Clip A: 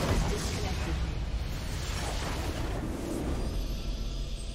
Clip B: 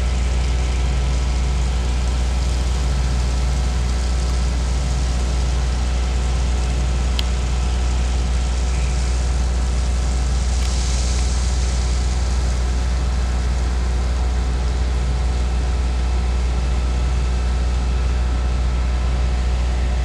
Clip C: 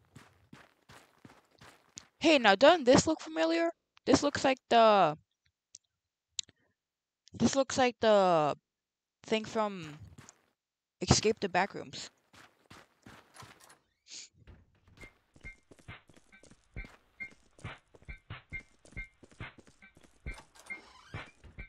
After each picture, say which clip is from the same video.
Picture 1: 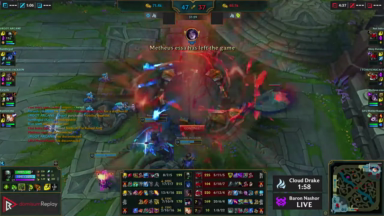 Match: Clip A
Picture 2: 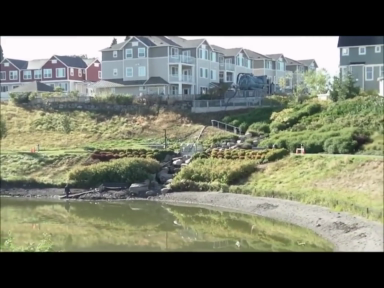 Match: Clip B